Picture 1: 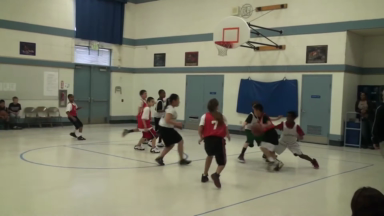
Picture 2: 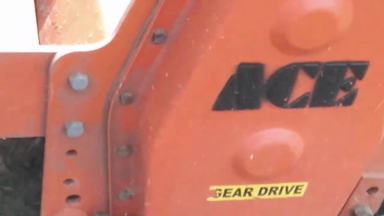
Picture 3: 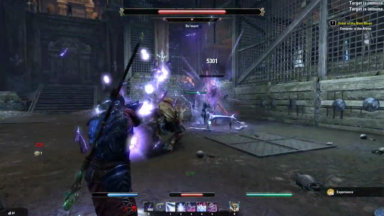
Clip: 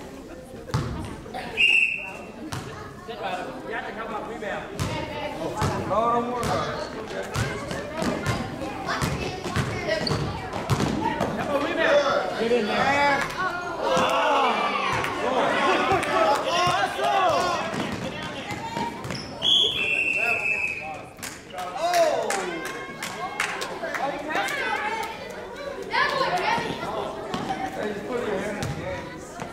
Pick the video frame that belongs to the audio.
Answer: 1